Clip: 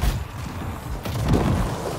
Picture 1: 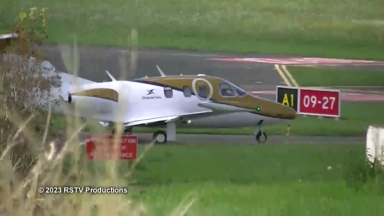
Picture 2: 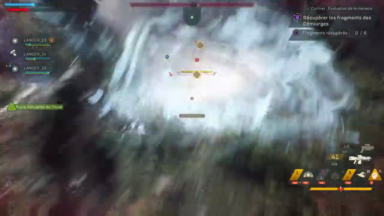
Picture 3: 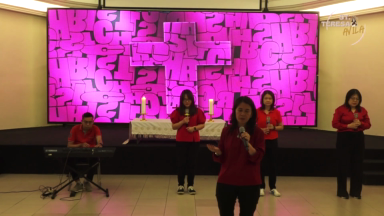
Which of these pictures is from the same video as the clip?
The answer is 2